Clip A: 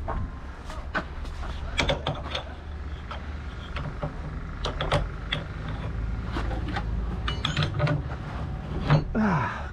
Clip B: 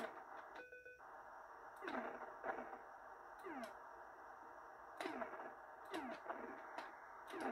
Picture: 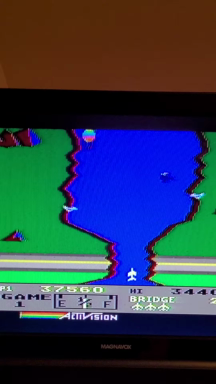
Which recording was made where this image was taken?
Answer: B